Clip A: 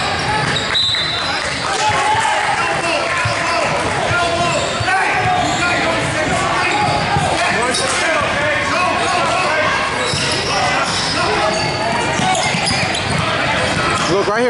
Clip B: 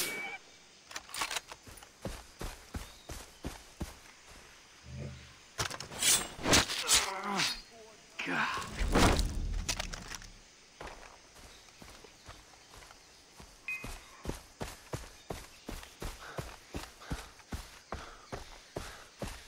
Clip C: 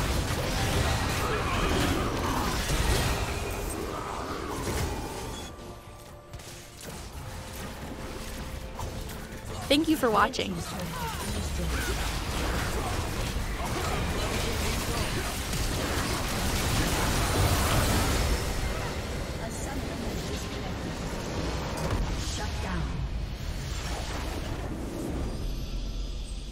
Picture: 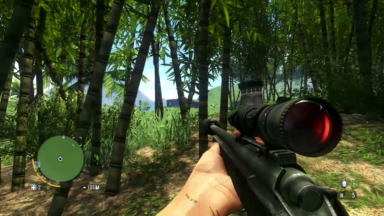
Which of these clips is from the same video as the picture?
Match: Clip B